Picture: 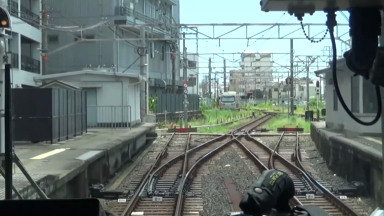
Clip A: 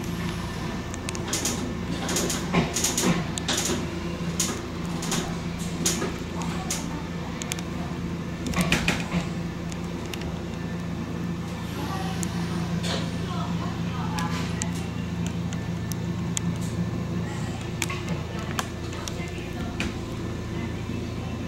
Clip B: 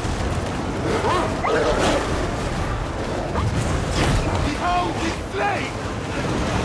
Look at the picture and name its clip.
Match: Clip A